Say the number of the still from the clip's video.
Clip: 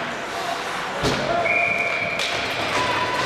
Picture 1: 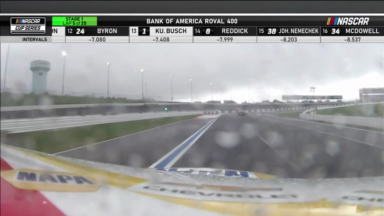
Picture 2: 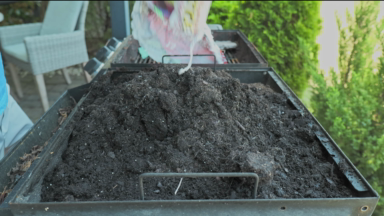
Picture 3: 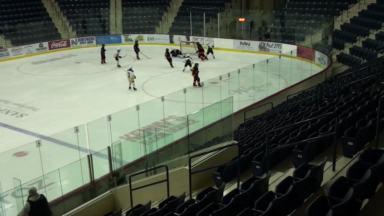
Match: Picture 3